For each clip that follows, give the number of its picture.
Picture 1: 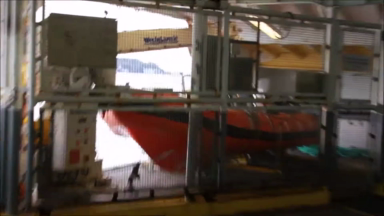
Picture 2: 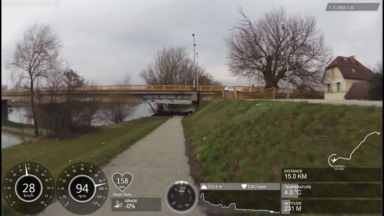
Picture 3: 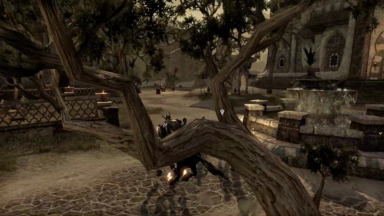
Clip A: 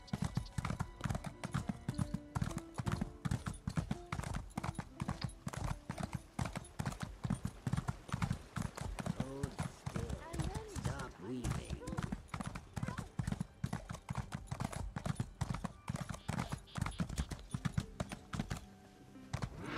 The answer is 3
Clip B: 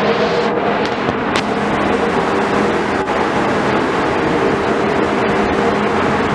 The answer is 1